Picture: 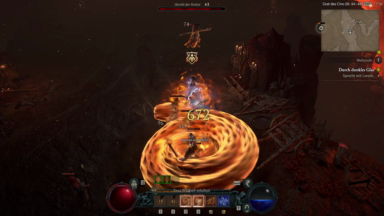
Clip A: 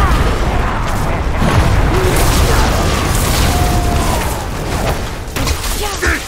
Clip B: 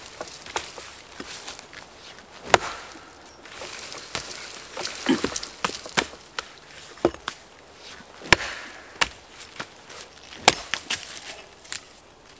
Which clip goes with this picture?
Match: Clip A